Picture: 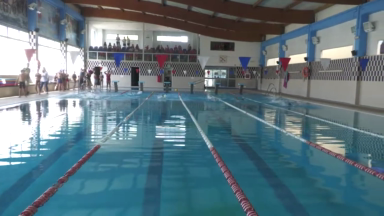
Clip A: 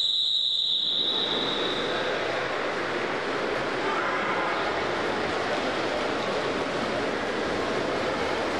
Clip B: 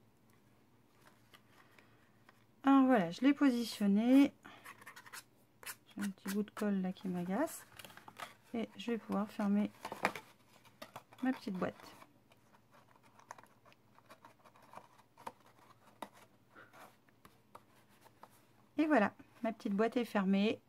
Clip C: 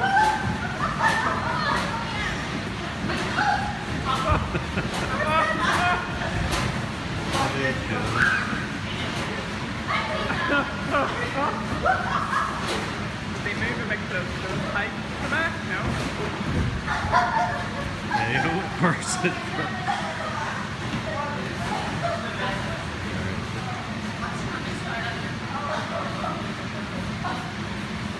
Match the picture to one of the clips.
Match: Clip A